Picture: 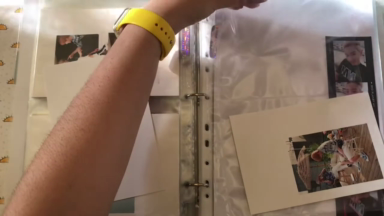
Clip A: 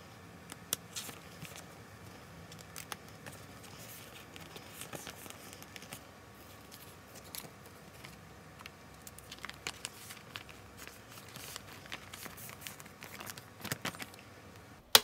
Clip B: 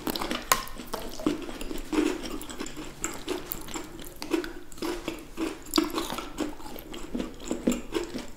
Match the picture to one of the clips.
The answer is A